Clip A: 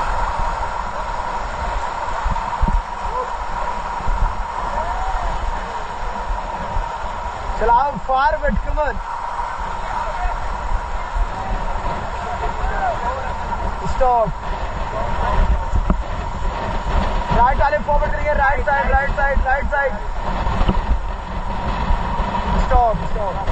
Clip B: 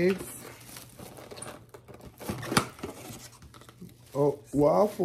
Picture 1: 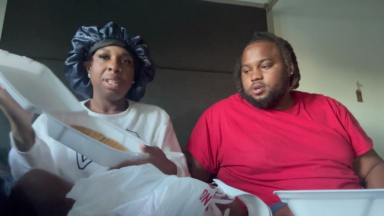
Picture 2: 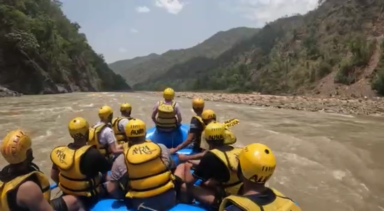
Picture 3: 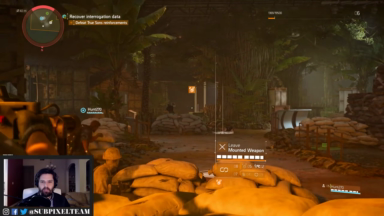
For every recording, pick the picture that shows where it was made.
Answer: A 2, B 1